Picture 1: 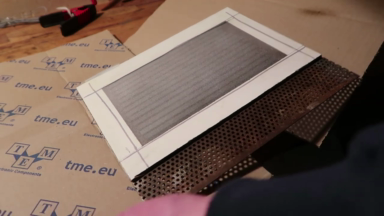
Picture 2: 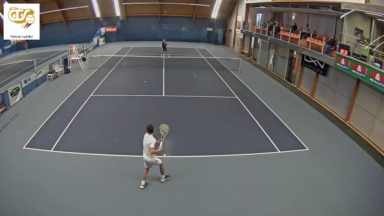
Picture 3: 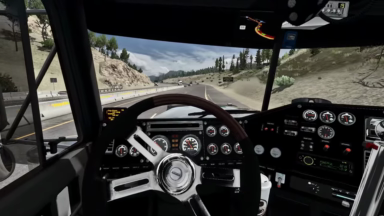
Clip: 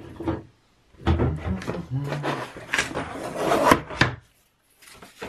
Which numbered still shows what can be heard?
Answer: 1